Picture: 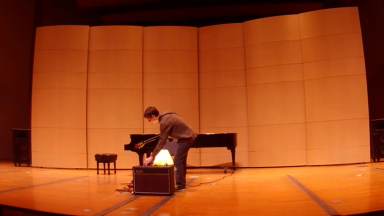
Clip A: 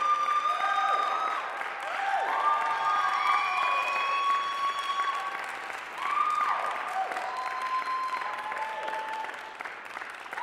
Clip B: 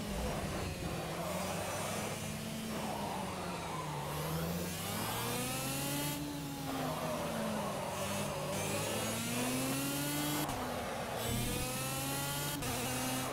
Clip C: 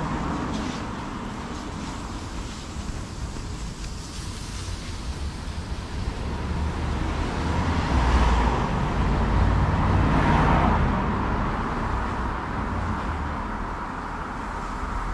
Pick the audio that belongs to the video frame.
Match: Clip A